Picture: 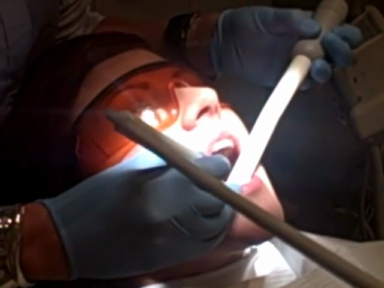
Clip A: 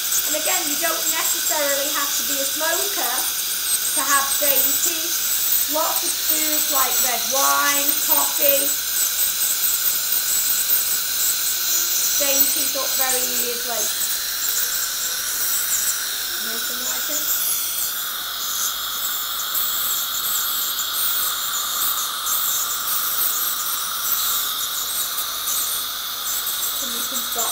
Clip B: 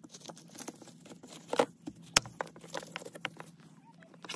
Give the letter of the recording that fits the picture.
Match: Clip A